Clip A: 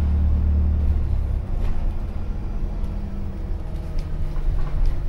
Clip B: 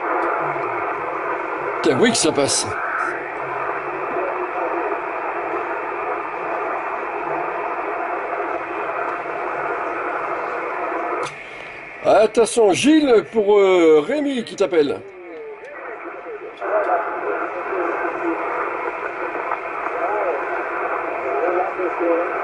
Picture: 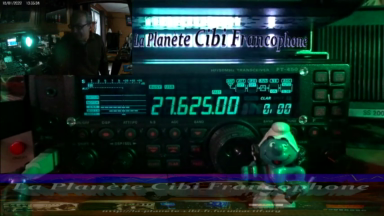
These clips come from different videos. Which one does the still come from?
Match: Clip B